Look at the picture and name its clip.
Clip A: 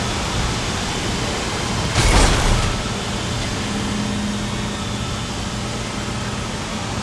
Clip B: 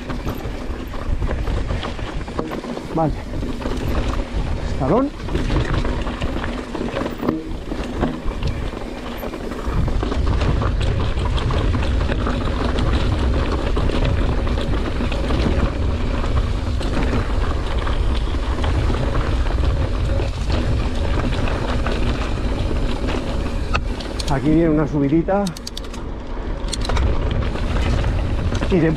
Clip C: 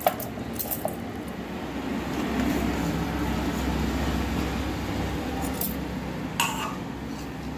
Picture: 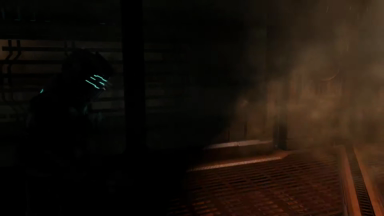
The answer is A